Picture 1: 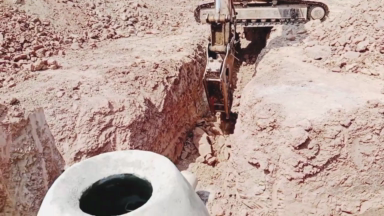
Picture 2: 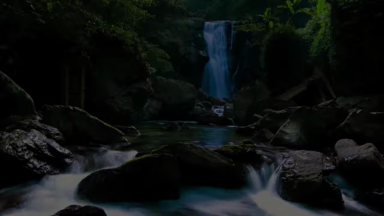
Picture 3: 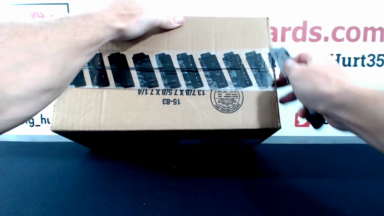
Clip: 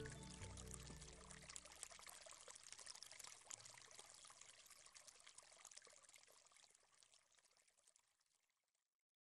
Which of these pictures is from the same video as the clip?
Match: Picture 2